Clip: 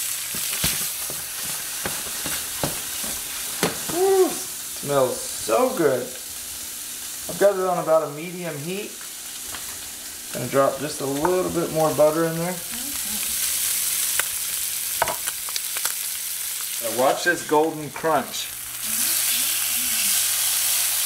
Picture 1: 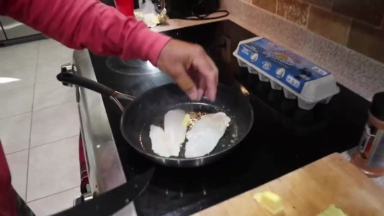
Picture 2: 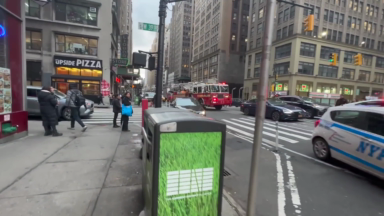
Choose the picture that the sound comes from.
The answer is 1